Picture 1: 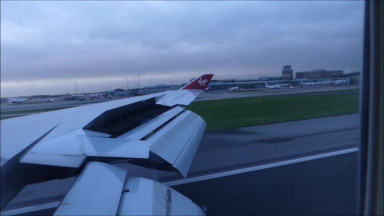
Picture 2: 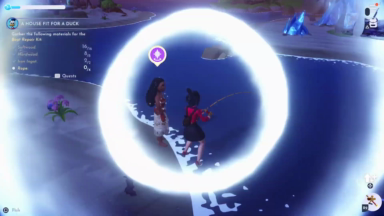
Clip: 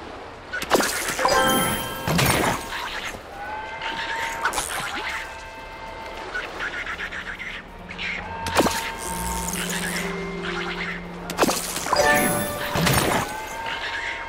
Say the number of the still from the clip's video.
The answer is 2